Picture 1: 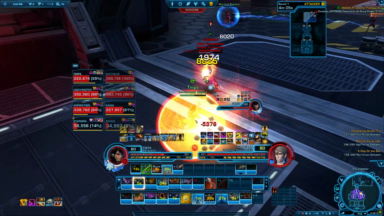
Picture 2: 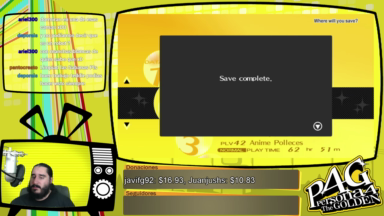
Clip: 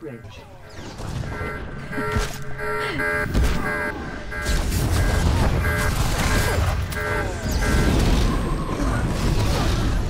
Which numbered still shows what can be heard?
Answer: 1